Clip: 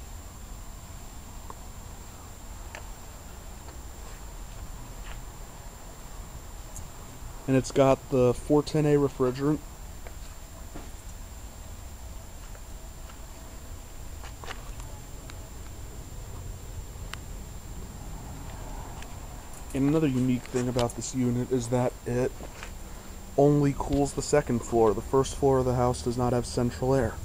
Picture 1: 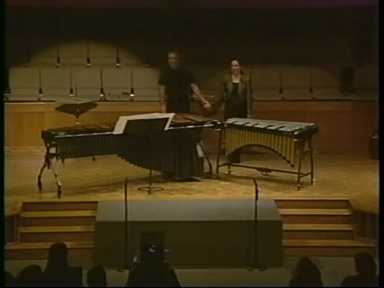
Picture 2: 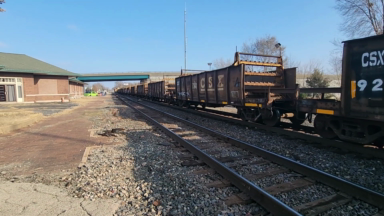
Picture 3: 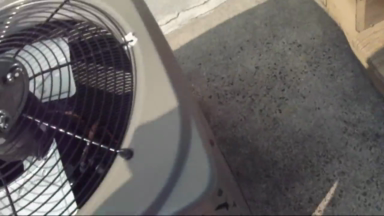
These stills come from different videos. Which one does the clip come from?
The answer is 3